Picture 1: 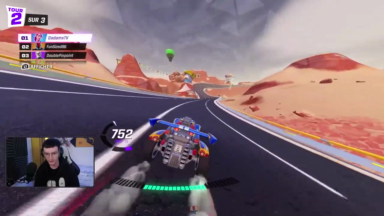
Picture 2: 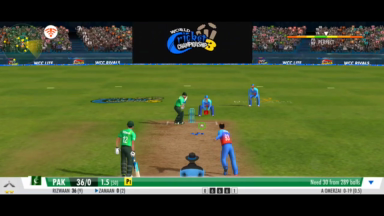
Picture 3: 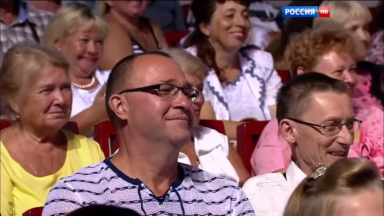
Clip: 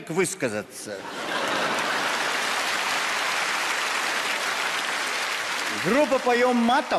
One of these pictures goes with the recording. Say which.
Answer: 3